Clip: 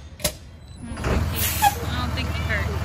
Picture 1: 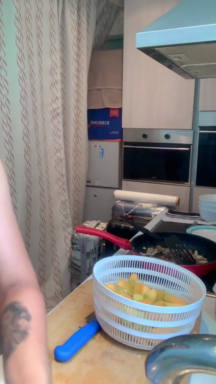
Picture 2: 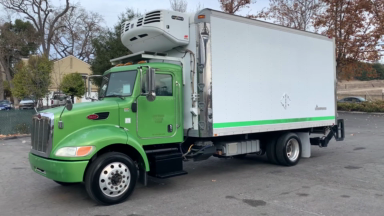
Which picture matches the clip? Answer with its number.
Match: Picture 2